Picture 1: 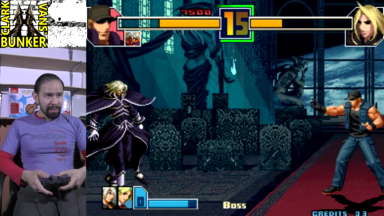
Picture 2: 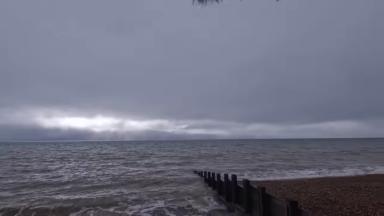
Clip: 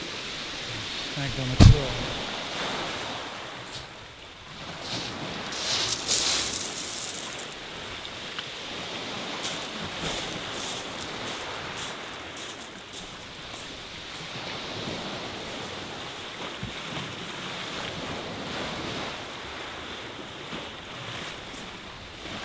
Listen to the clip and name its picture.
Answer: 2